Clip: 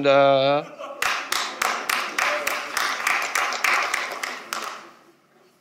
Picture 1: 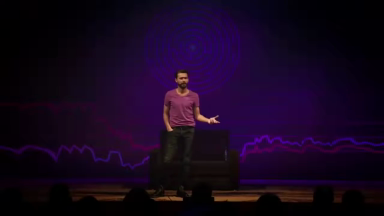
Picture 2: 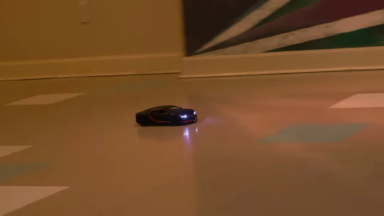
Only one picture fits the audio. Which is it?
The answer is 1